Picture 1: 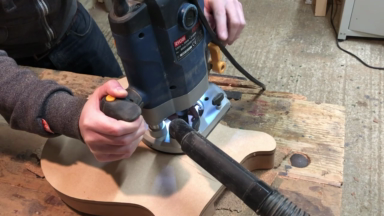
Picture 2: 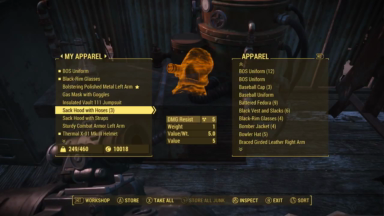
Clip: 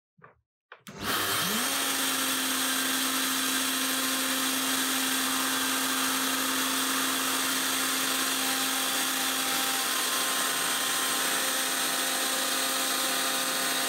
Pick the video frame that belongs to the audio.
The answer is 1